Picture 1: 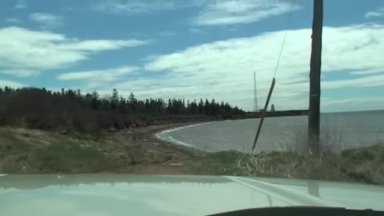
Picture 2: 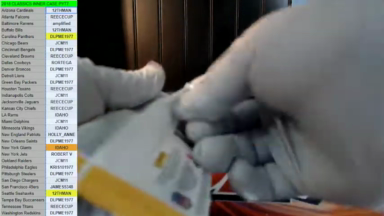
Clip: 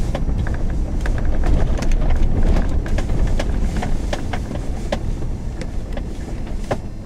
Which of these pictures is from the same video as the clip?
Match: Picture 1